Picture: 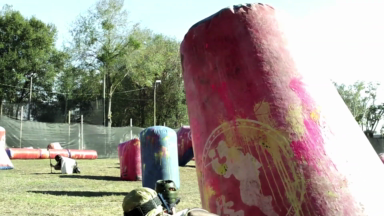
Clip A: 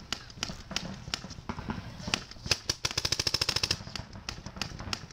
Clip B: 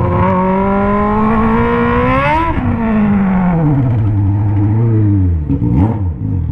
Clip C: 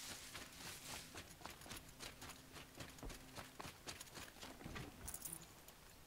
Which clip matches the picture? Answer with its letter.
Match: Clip A